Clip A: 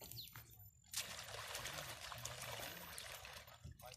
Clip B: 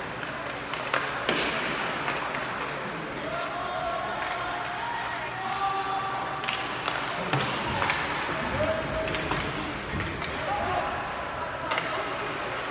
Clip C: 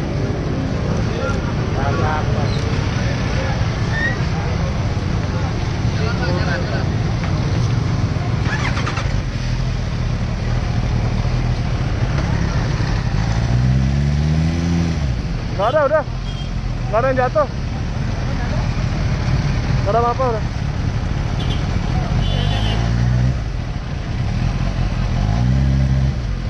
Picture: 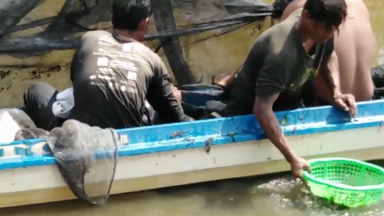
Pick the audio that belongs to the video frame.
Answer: A